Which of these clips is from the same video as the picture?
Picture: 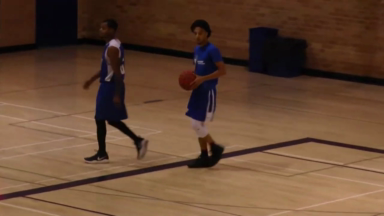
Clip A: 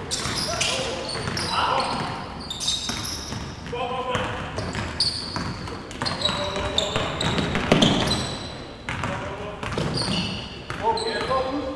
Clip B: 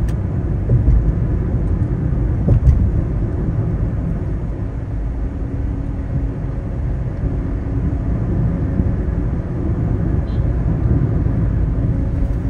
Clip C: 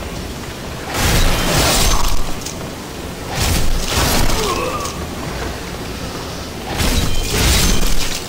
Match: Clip A